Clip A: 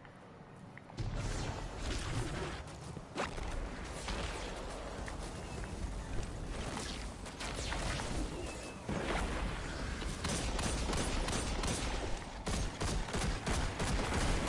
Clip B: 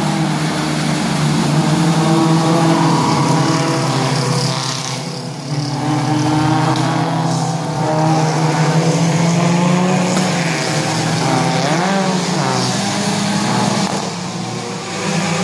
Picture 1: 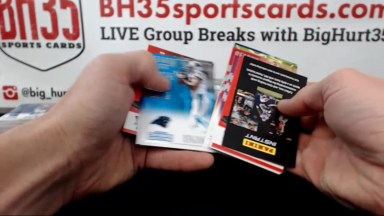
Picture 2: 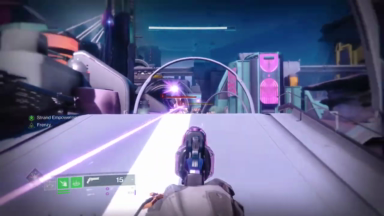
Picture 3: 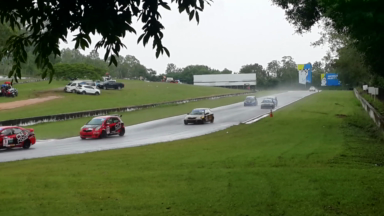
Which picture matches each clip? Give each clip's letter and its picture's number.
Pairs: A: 2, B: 3